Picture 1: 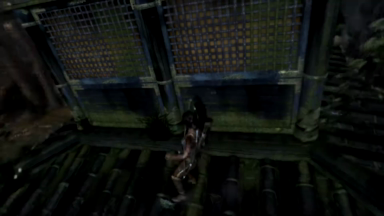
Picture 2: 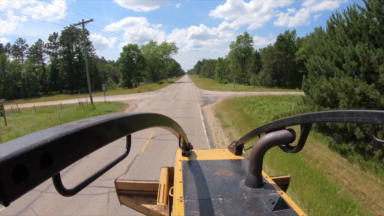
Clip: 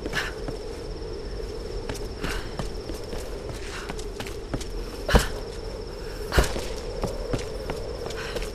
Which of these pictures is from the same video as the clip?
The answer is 1